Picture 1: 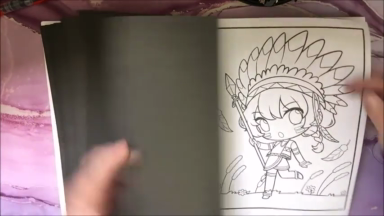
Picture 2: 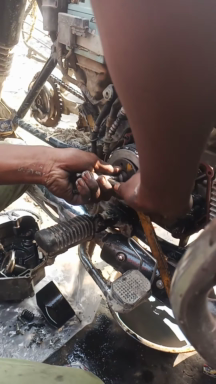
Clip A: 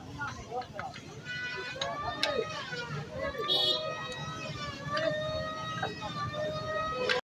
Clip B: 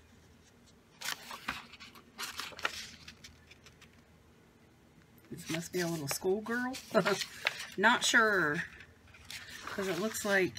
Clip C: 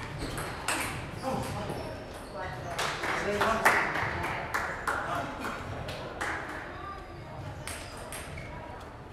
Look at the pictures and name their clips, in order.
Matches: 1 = B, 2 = A